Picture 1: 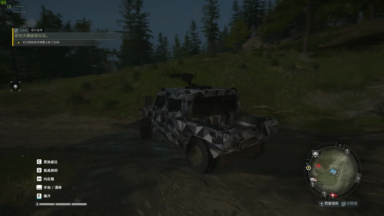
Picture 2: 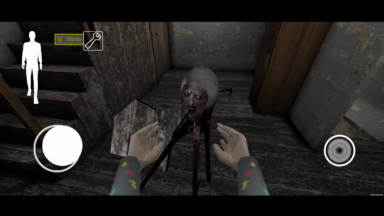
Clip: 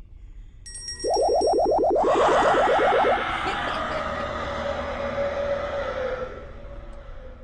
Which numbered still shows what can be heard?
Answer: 2